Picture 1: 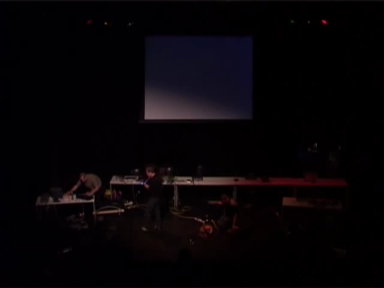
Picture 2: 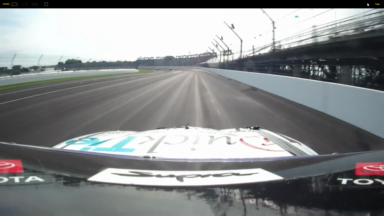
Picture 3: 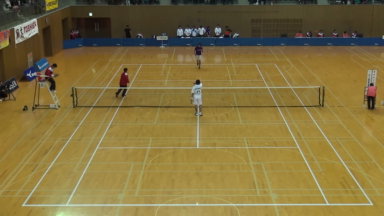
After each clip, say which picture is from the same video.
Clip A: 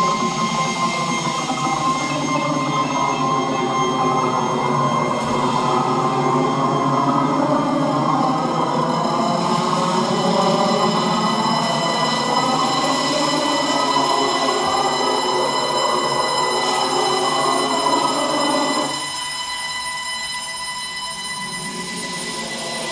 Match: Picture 1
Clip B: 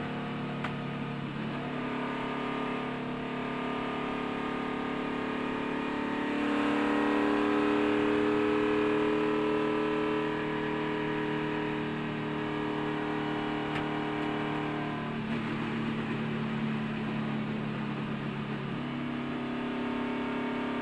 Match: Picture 2